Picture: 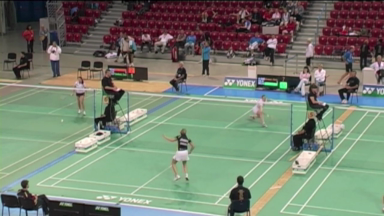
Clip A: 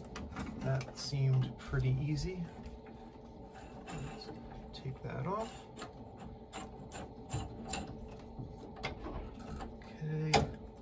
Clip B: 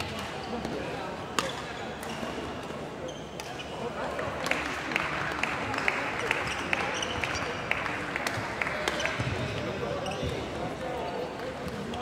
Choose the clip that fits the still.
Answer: B